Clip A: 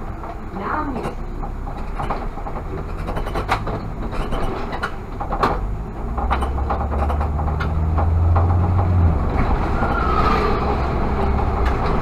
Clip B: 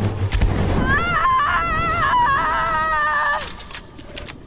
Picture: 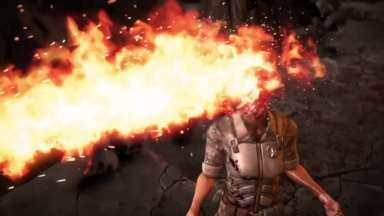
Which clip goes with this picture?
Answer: B